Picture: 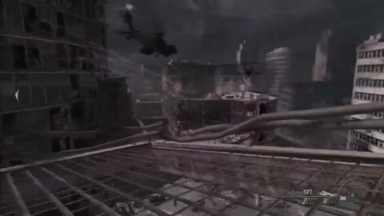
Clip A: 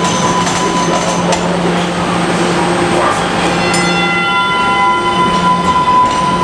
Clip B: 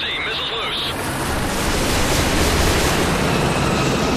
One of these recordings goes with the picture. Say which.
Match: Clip B